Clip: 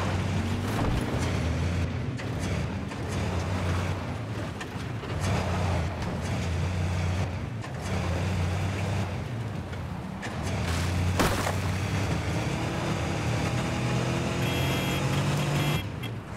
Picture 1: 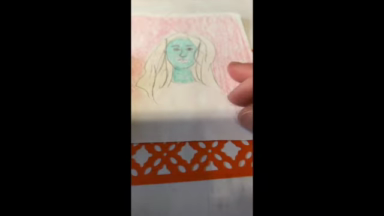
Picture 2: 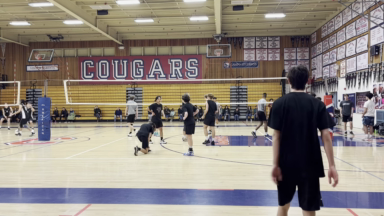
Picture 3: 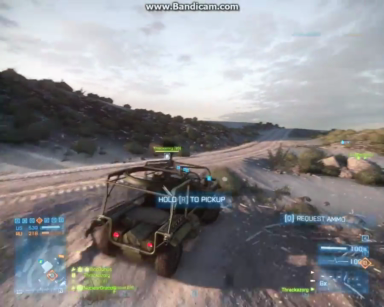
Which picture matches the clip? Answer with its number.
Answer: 3